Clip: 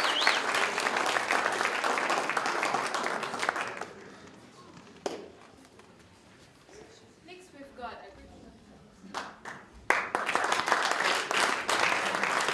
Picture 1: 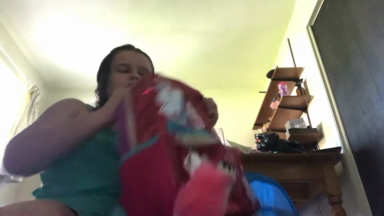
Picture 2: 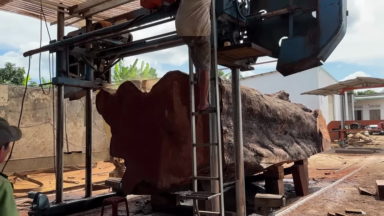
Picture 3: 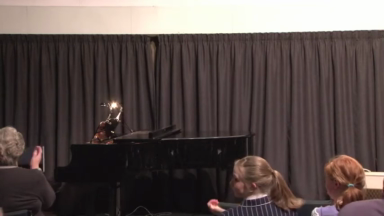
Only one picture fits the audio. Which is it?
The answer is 3